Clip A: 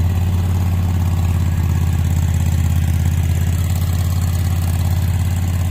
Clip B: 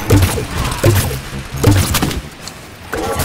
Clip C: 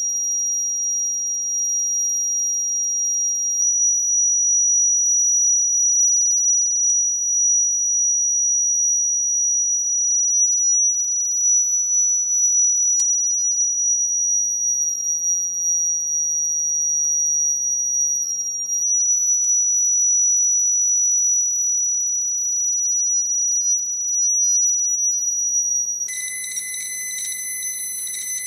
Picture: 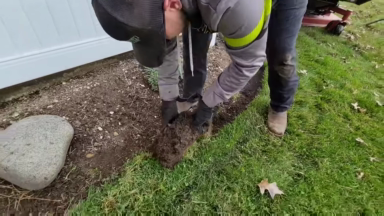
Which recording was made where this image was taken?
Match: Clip A